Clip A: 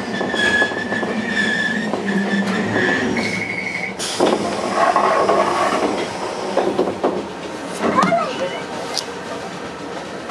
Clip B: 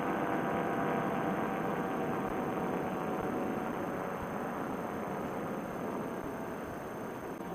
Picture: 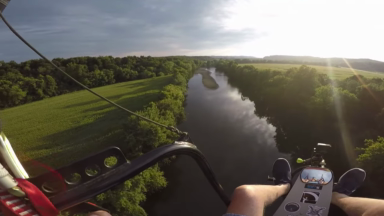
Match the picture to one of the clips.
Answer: B